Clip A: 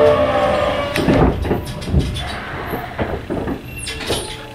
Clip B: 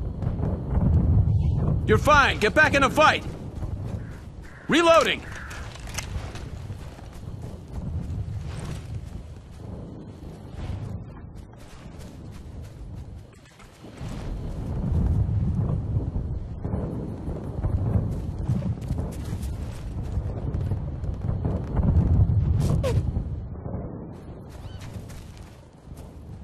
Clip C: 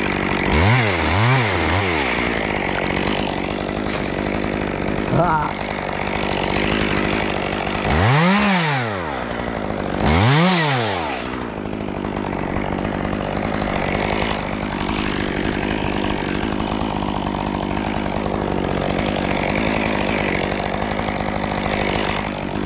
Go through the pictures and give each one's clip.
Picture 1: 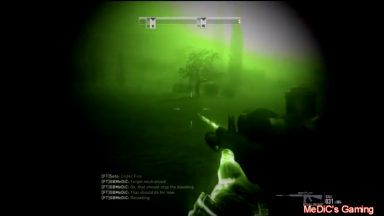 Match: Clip B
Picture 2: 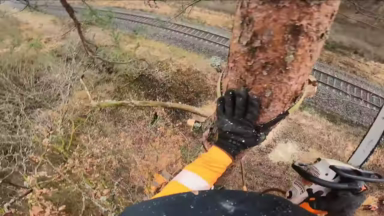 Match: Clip C